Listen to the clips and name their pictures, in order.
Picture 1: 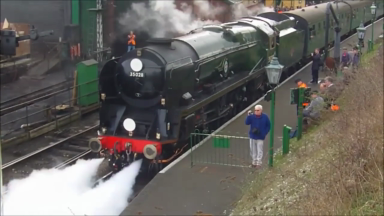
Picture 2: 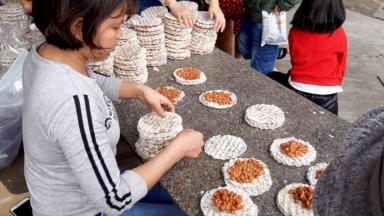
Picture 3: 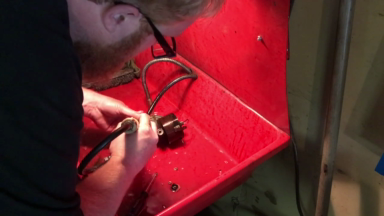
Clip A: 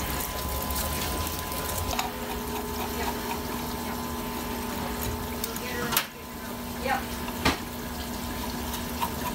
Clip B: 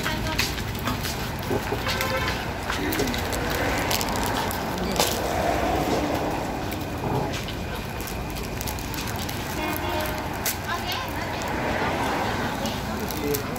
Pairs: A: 3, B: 2